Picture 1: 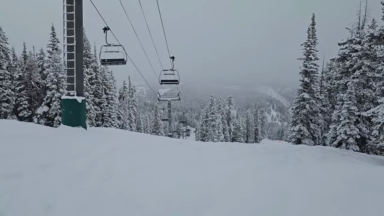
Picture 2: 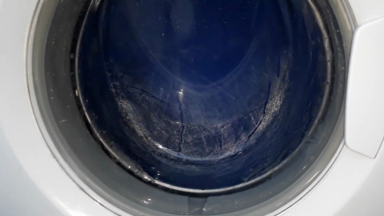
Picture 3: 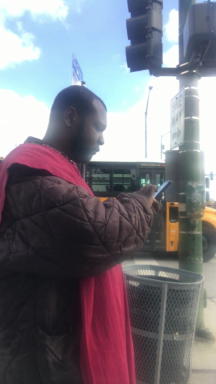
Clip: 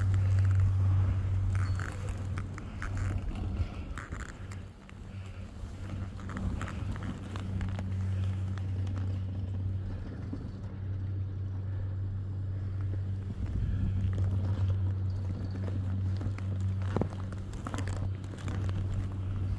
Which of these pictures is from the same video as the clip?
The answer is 1